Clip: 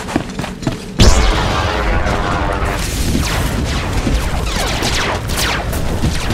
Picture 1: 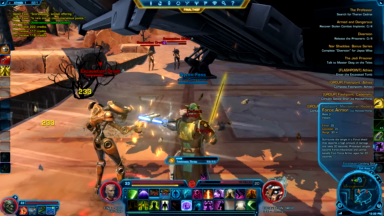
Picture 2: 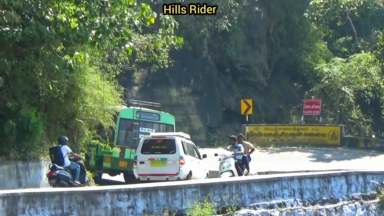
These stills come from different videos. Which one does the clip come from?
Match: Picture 1